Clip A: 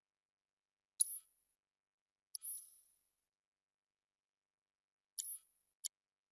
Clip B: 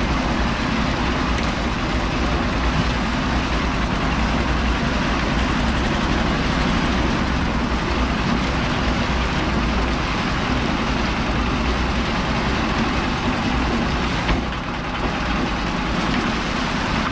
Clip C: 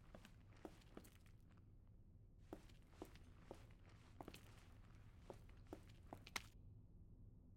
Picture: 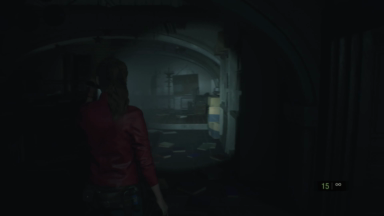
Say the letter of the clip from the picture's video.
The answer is C